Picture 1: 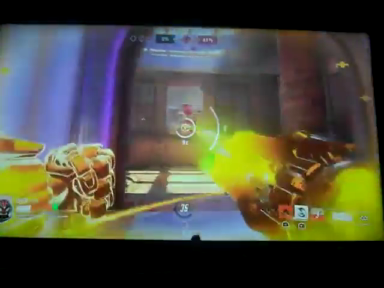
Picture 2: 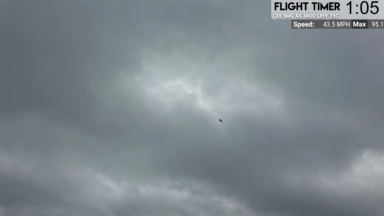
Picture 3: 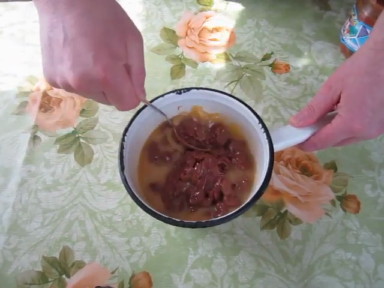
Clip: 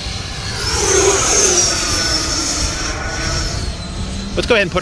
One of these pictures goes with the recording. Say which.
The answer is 2